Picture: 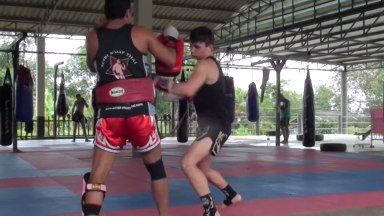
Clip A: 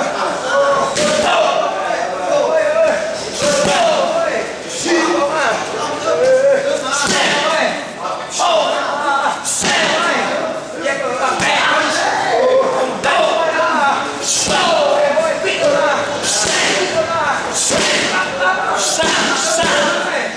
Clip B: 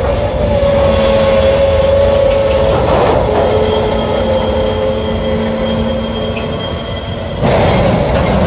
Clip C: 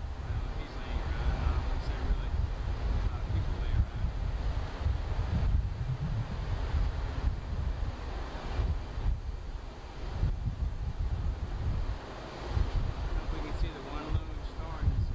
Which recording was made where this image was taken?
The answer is A